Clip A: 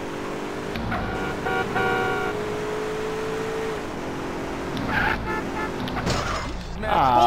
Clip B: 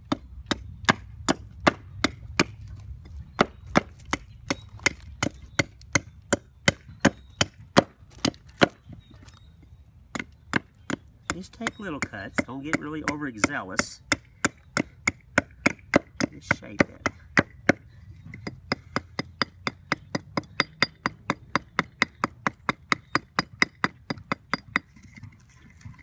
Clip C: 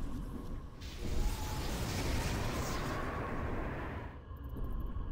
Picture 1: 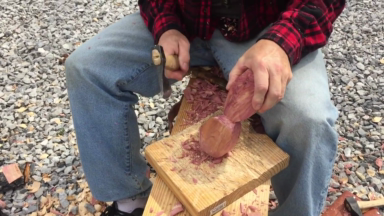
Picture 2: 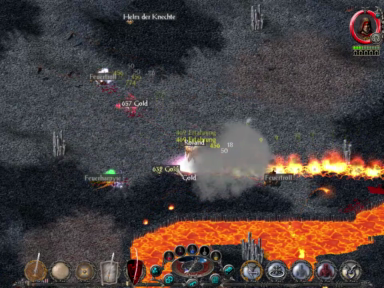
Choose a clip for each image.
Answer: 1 B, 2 C